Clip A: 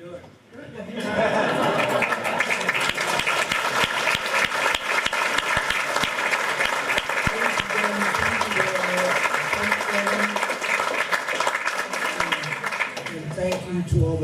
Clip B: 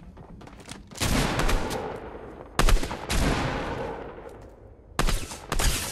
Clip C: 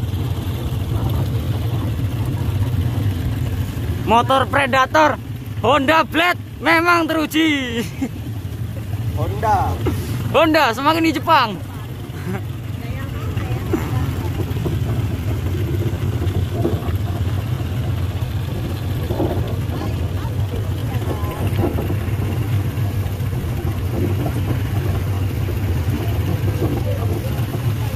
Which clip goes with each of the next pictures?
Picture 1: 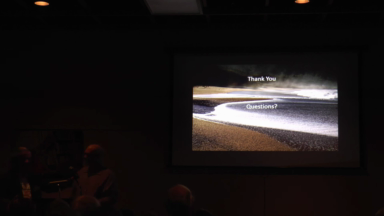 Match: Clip A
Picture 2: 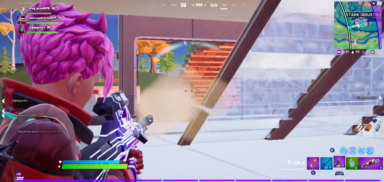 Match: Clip B